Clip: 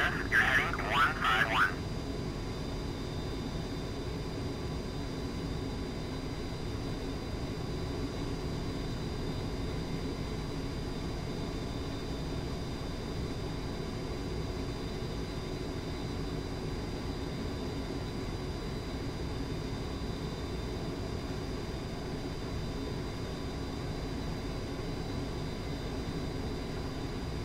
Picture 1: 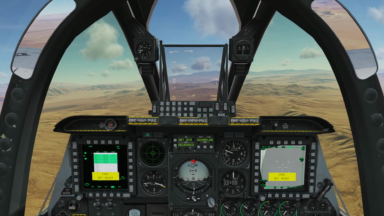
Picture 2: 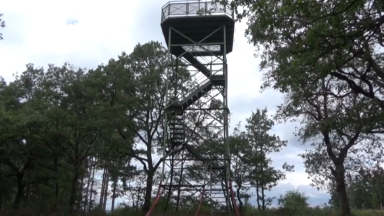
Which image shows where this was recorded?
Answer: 1